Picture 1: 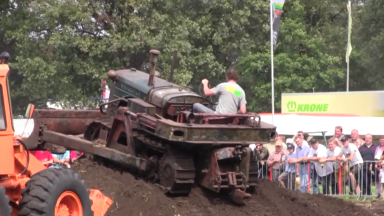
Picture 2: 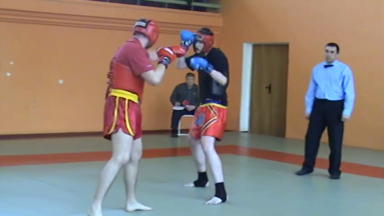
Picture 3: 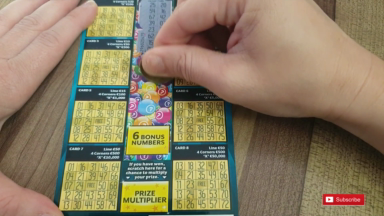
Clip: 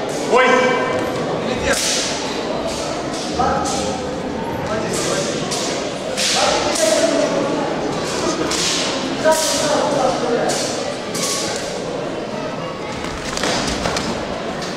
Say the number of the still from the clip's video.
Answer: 2